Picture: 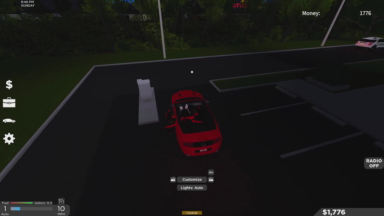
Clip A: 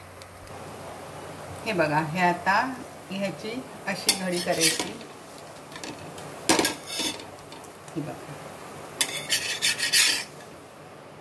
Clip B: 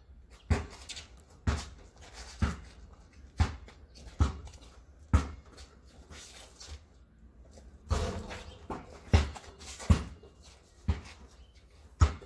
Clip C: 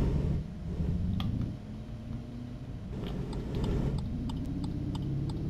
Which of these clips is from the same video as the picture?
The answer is C